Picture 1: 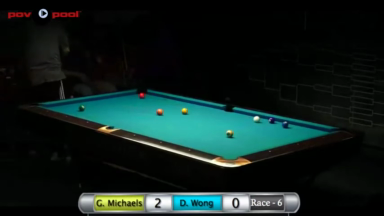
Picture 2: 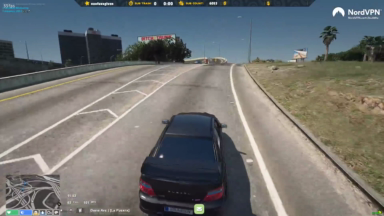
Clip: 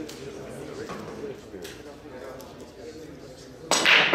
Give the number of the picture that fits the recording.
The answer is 1